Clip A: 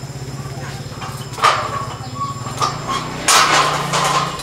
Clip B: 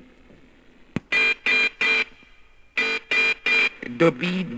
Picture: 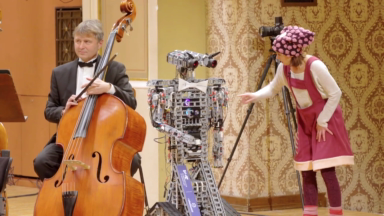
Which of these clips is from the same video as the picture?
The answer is B